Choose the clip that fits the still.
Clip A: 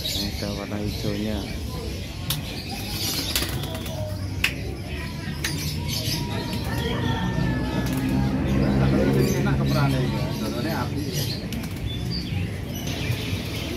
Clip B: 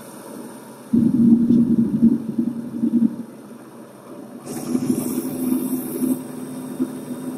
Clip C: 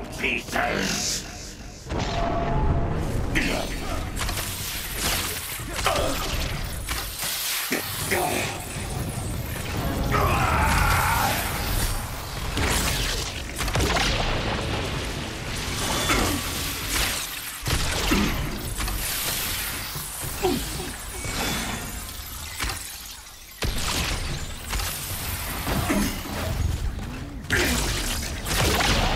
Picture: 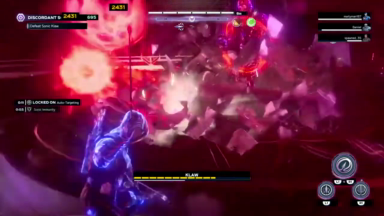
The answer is C